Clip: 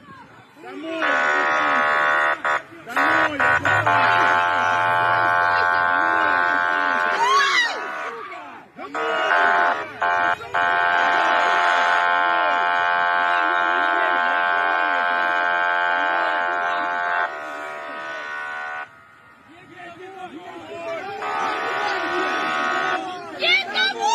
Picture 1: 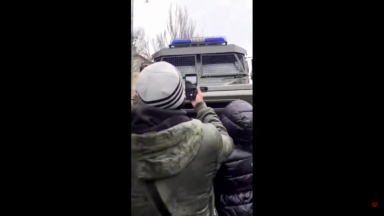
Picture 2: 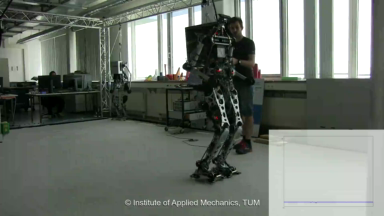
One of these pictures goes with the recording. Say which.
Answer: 1